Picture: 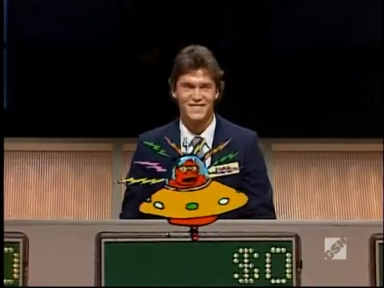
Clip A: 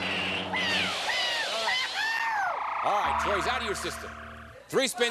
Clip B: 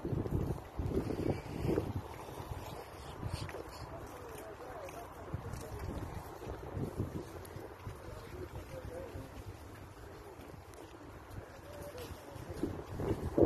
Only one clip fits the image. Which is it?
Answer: A